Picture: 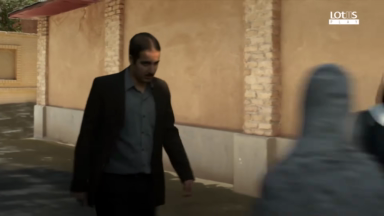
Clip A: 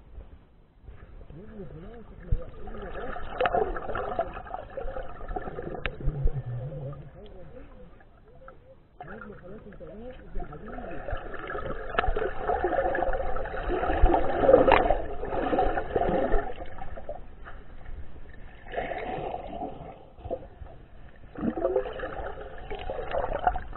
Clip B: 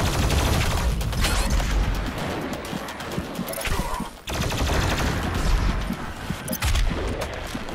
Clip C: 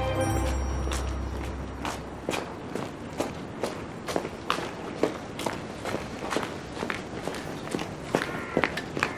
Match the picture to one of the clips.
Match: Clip C